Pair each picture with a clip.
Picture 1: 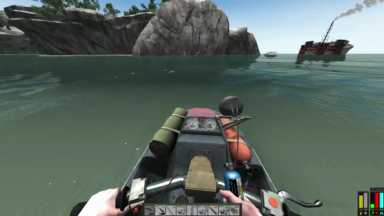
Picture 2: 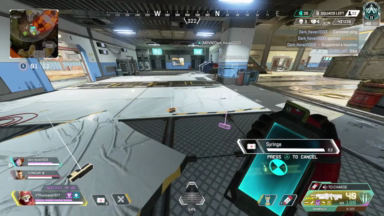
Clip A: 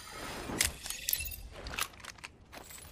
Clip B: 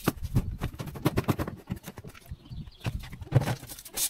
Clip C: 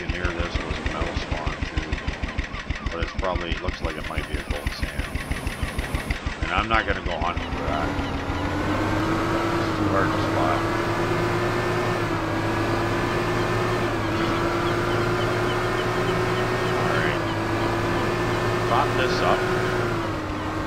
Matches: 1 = C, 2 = A